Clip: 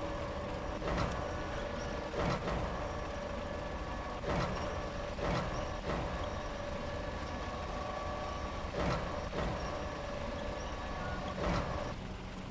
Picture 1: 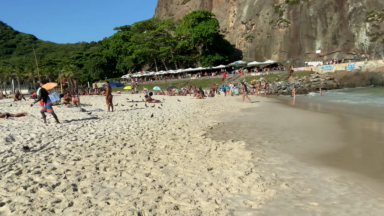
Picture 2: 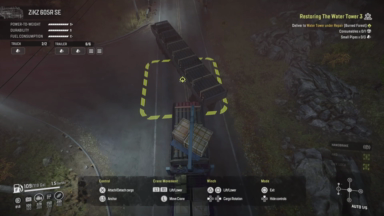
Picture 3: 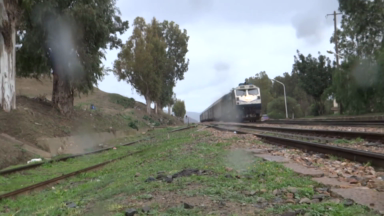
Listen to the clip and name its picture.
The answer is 2